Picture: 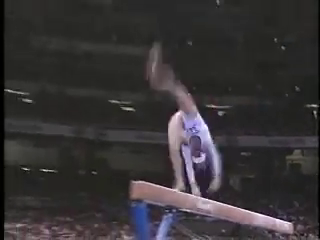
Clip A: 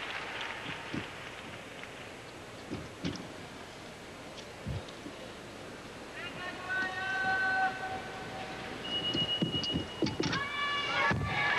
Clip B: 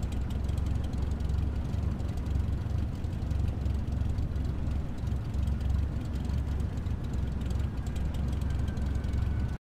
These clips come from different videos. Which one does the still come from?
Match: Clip A